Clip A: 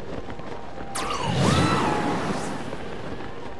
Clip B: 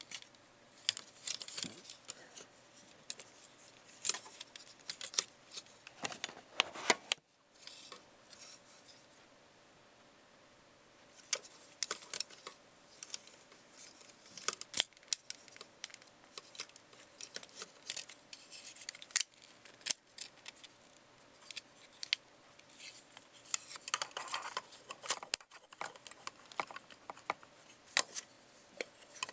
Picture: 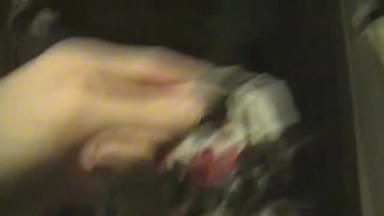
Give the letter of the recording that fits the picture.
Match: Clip B